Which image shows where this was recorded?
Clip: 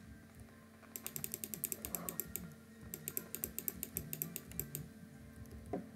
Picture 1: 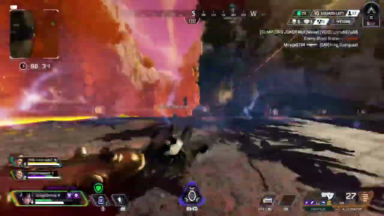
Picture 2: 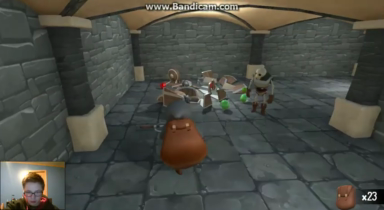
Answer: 2